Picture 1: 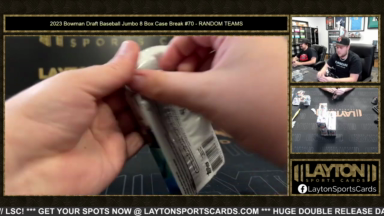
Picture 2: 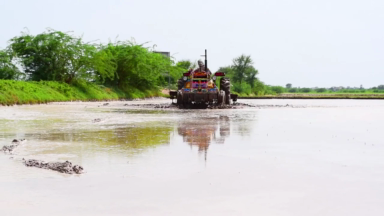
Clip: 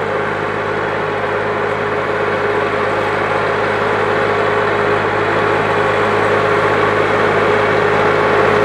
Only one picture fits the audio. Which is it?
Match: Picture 2